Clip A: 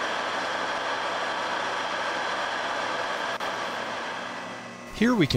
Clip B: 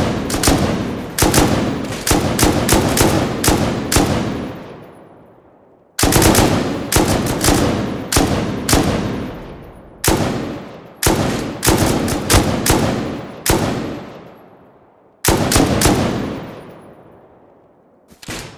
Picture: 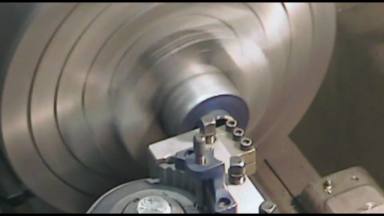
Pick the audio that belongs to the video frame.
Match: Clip A